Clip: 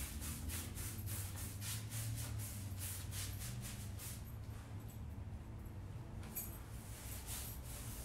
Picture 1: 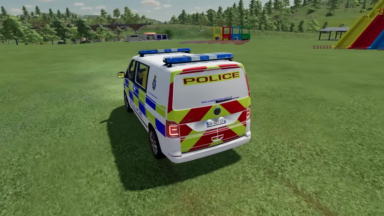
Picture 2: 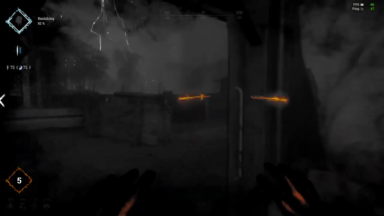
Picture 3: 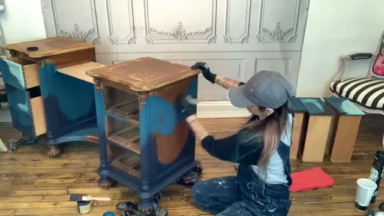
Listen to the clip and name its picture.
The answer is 3